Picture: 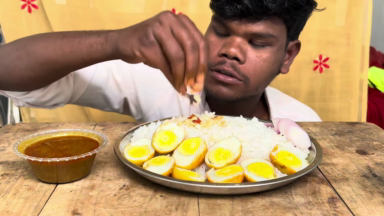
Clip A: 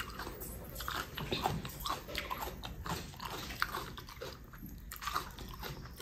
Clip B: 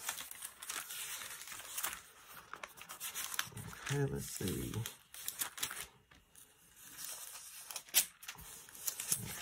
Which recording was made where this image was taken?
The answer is A